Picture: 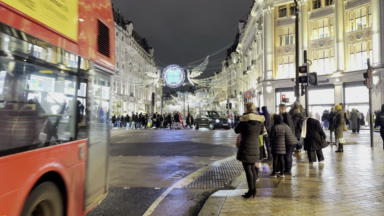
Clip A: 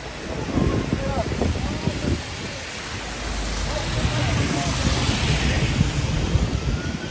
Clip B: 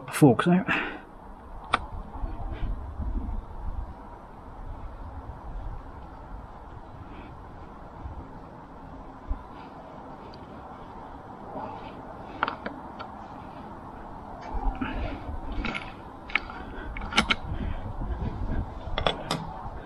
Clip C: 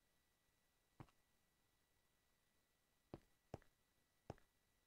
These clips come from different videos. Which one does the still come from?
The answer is A